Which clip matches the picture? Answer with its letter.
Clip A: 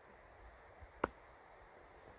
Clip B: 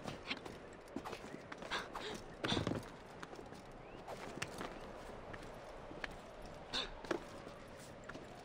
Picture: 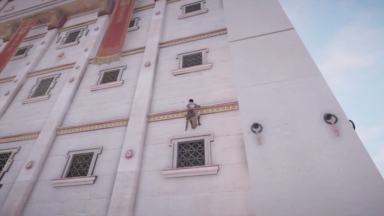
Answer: B